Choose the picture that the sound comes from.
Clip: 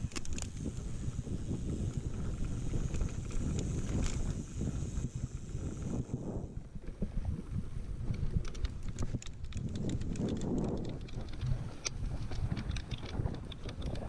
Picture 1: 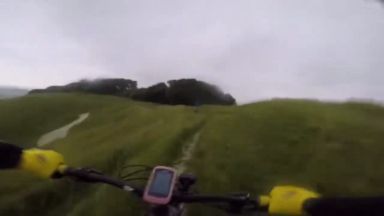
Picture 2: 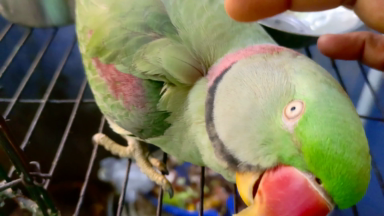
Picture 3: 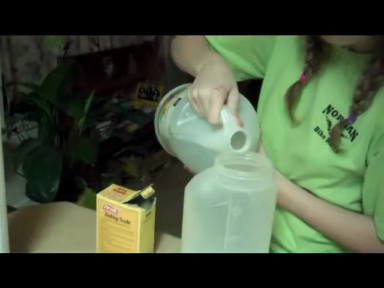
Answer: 1